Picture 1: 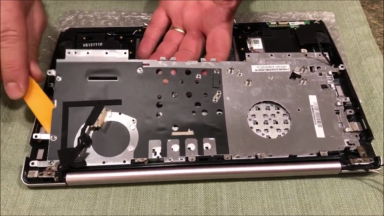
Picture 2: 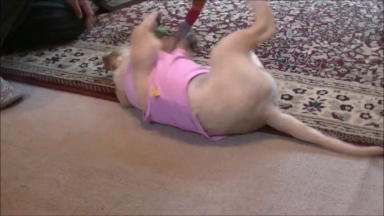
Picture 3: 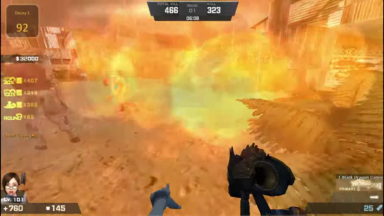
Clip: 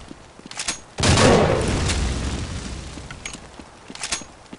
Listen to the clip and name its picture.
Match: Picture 3